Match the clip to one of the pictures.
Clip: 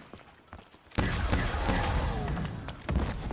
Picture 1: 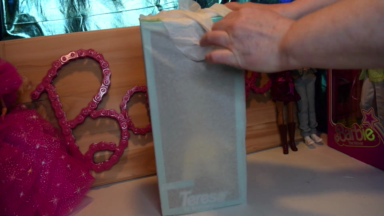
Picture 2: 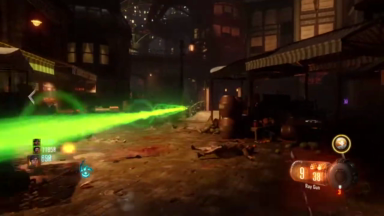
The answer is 2